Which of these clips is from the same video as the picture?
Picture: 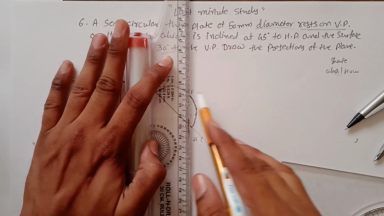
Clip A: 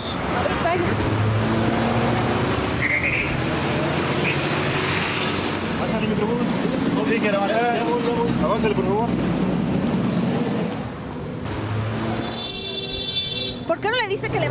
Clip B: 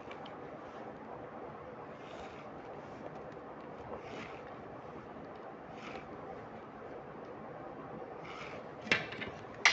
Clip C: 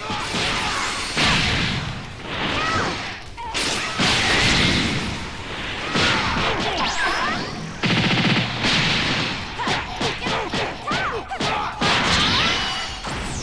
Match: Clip B